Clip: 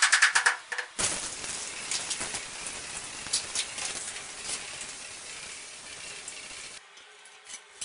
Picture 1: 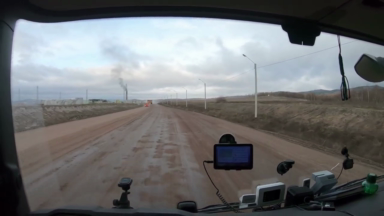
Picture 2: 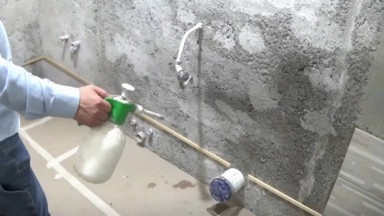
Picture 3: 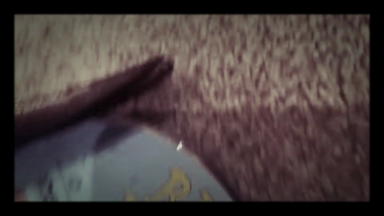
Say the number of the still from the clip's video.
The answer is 2